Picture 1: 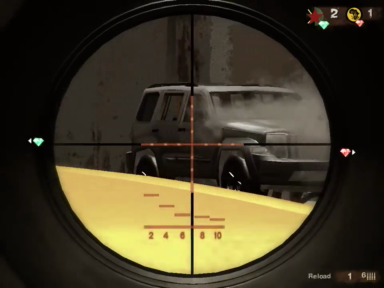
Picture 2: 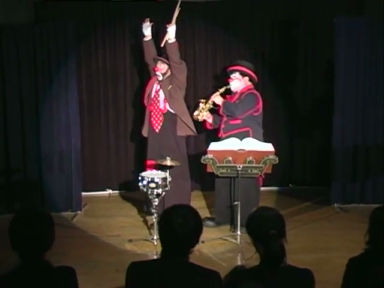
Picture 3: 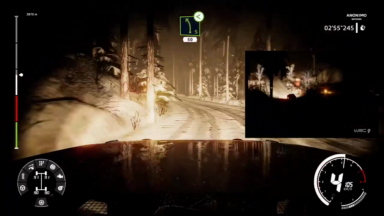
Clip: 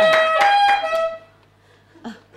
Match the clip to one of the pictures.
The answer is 2